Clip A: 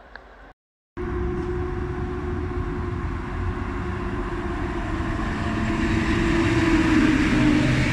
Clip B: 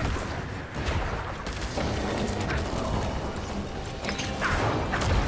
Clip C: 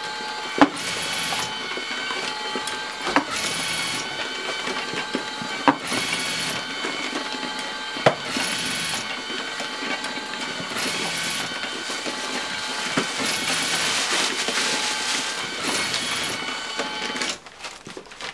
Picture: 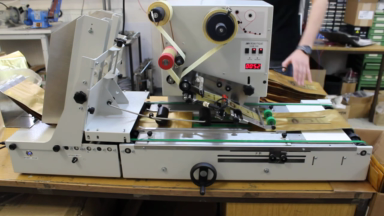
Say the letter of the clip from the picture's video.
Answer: C